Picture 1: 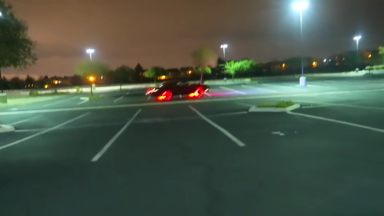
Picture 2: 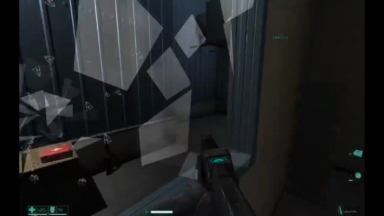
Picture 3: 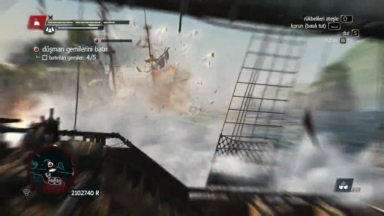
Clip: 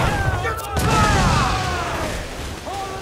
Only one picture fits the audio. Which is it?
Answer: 3